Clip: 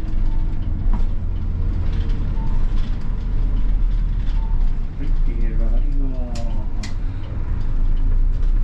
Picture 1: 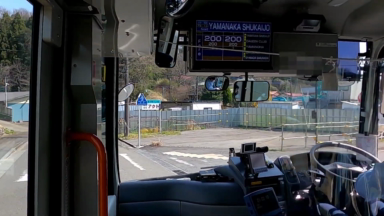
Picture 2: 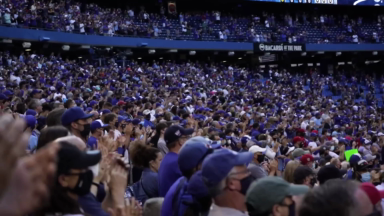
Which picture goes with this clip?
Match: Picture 1